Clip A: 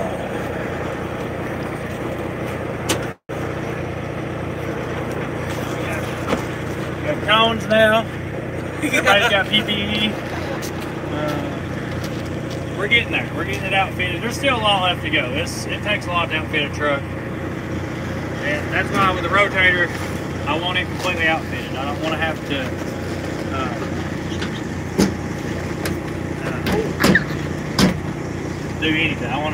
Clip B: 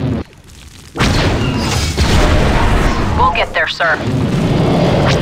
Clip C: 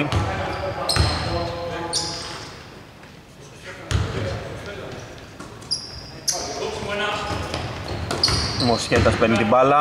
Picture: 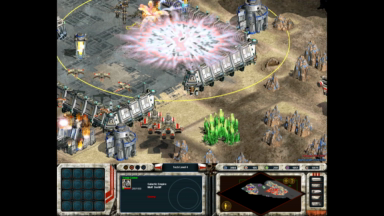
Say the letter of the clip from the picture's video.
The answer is B